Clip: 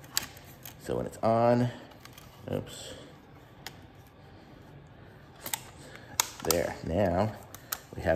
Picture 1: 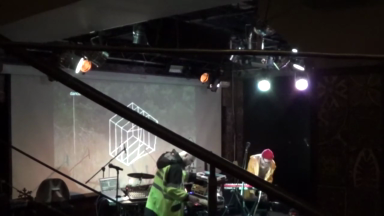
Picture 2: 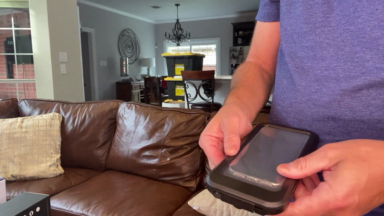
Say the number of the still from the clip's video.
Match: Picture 2